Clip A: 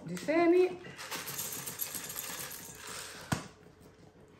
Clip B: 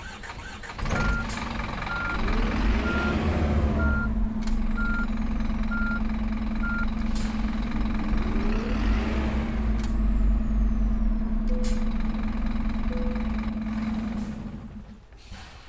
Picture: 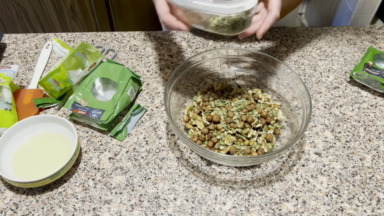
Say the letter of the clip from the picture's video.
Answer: A